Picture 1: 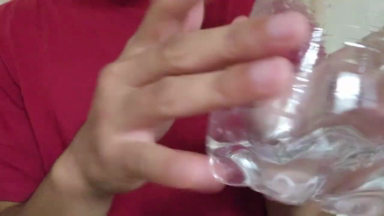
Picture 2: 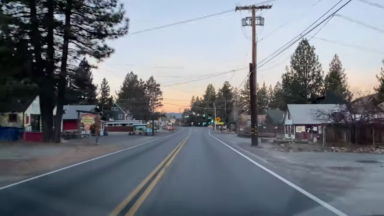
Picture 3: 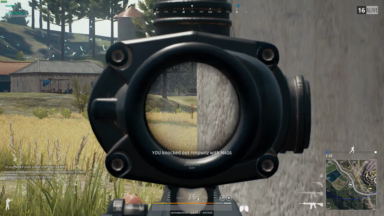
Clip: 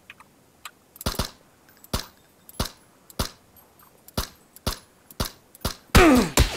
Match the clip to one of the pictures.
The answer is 3